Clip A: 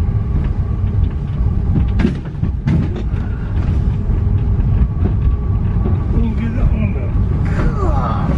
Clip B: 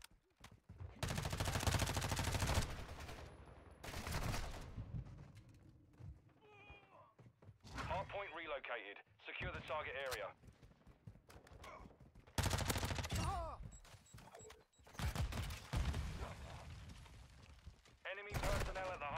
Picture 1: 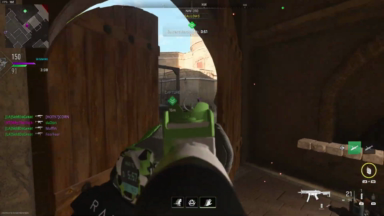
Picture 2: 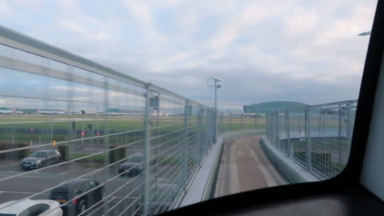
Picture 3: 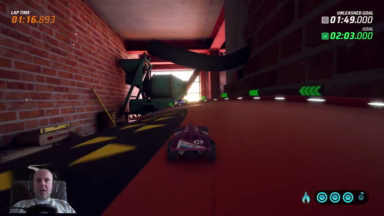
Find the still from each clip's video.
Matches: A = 2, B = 1